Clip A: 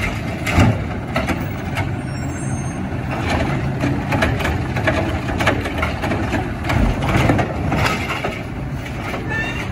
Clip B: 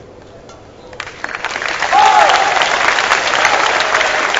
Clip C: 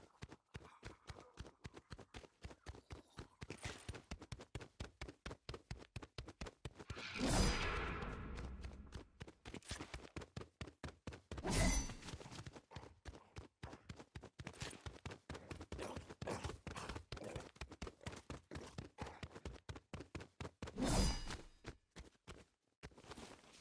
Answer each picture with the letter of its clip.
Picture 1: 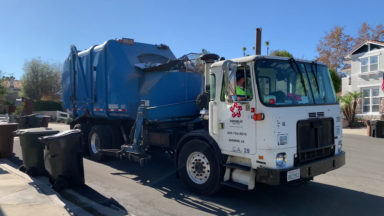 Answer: A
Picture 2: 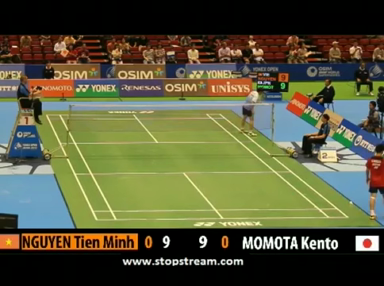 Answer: B